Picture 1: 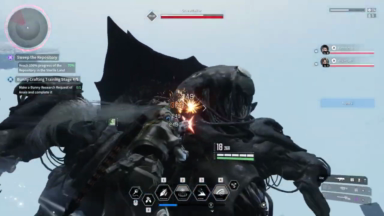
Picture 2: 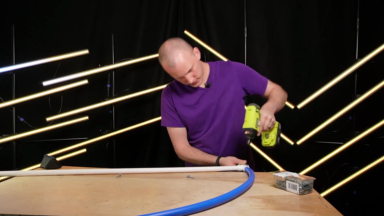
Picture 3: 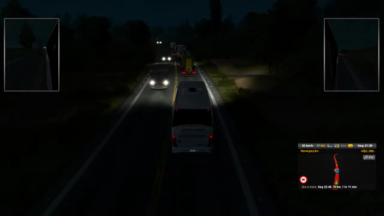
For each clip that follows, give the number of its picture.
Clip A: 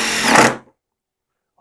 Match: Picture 2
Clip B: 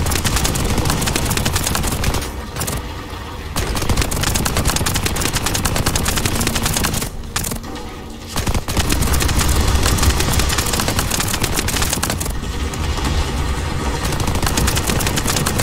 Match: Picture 1